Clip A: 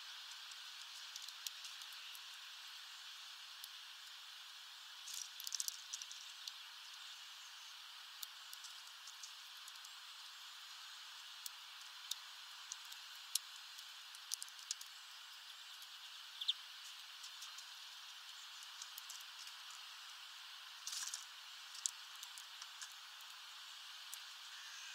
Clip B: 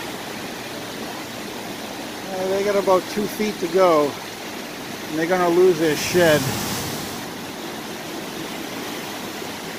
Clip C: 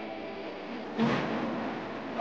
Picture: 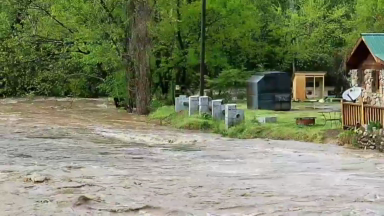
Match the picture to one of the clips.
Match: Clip B